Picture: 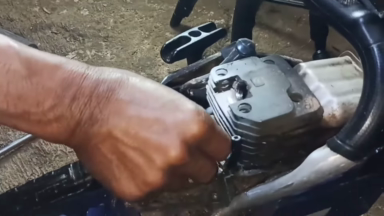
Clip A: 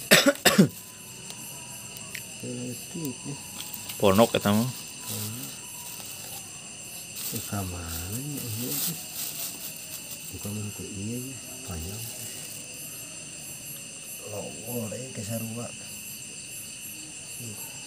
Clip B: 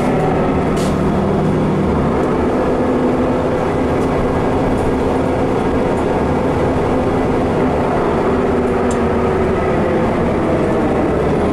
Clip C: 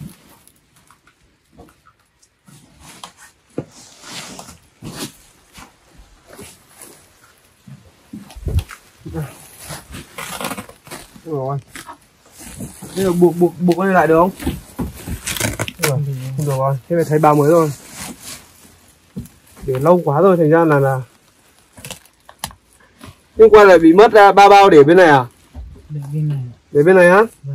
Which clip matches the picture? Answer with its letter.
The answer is A